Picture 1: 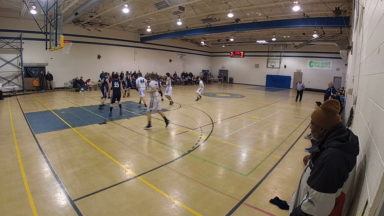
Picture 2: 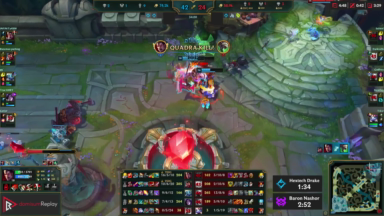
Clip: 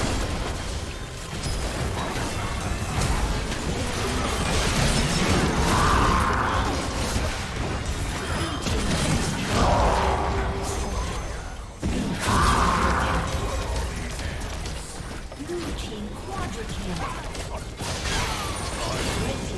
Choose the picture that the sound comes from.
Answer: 2